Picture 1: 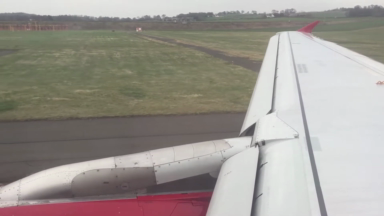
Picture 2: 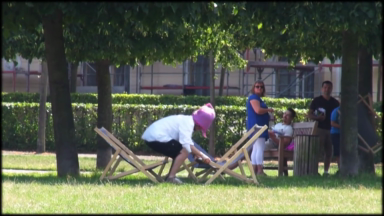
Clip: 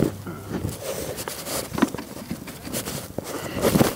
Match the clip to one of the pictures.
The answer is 2